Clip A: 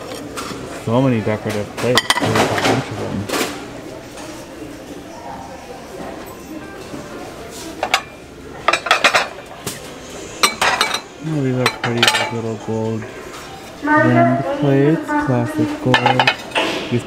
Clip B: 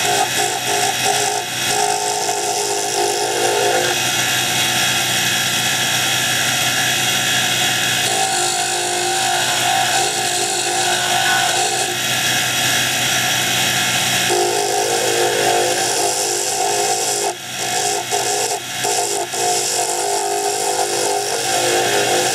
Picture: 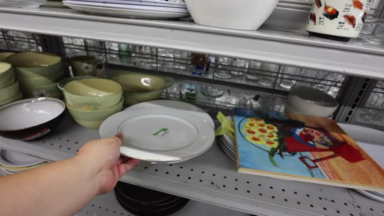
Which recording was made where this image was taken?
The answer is A